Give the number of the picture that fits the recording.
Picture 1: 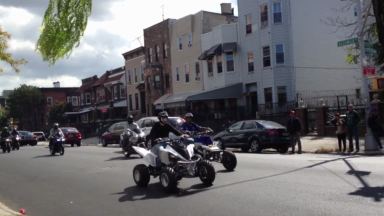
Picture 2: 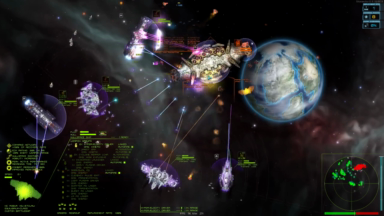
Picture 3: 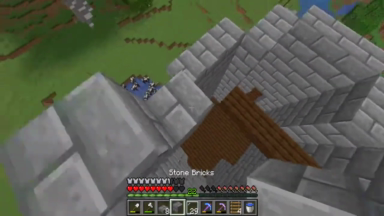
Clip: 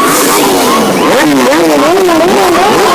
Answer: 1